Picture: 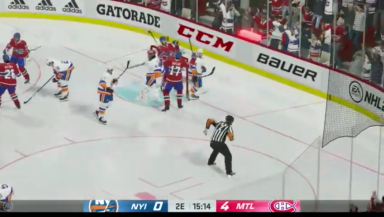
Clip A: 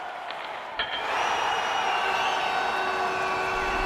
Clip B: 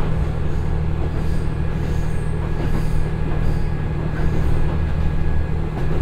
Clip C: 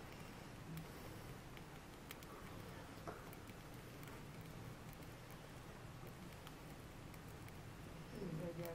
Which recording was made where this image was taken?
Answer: A